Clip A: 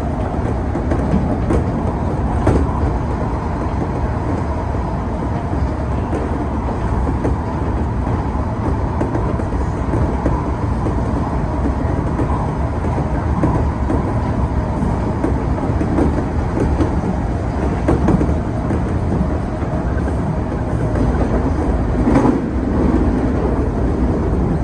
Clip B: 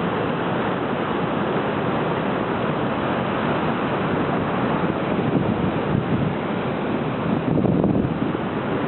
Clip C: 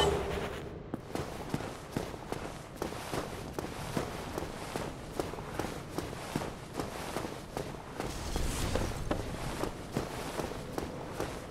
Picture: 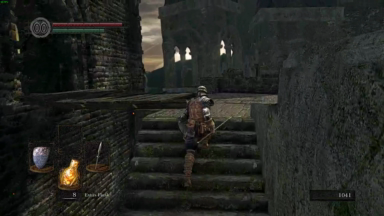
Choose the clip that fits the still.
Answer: C